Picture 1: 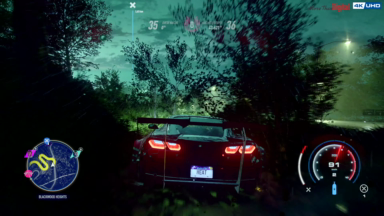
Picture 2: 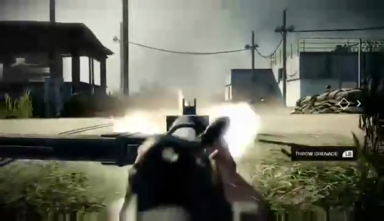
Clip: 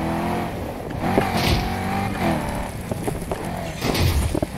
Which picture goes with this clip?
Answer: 1